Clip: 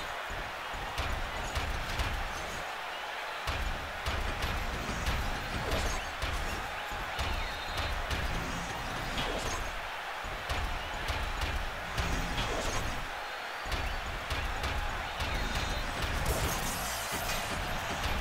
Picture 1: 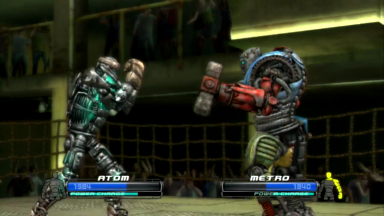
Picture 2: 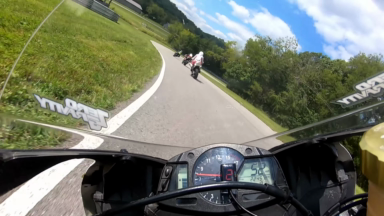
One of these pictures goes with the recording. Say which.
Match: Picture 1